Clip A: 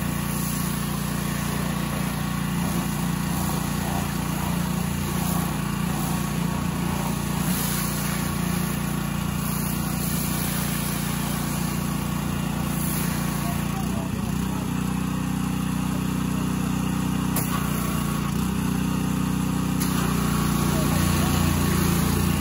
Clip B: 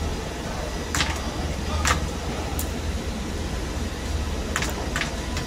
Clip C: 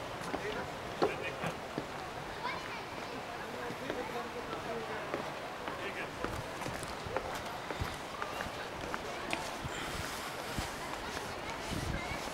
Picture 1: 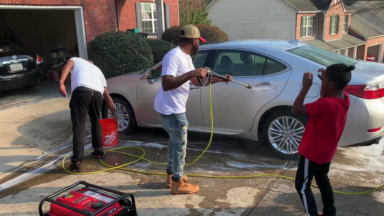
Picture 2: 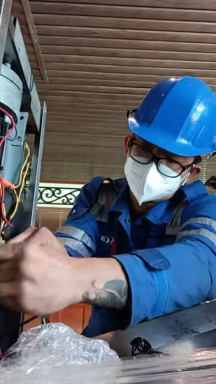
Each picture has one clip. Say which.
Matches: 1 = A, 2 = B